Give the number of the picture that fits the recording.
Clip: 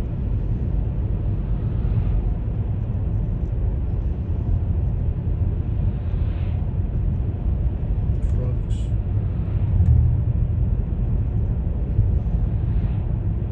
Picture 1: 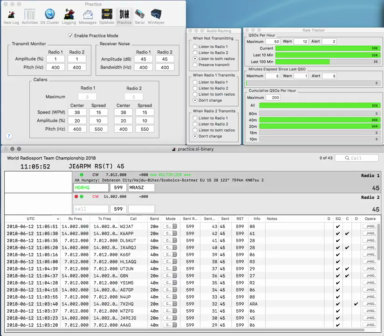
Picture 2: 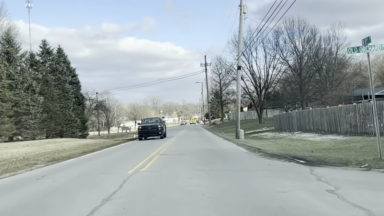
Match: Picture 2